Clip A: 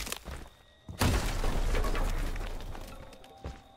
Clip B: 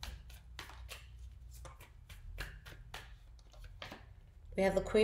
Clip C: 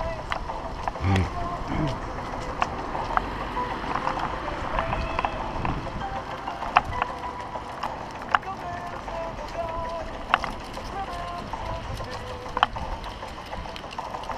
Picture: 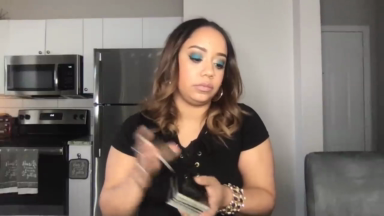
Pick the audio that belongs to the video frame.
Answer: B